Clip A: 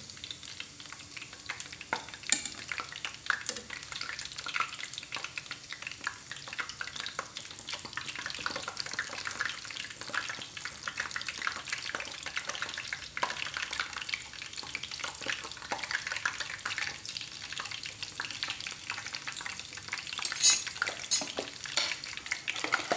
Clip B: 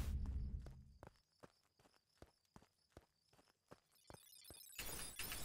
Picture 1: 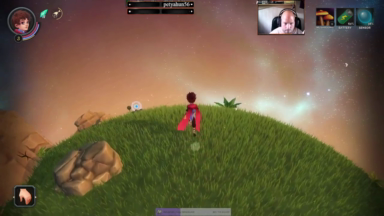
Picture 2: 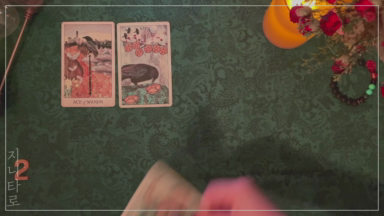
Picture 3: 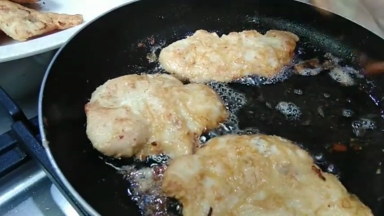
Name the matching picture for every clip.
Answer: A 3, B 1